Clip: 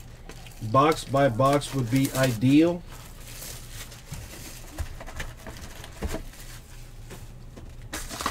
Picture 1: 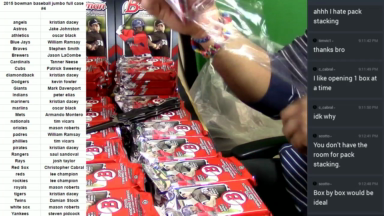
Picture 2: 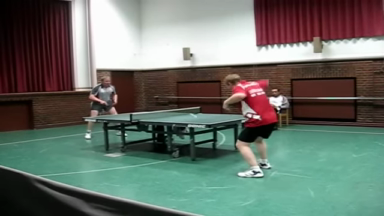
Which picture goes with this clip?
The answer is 1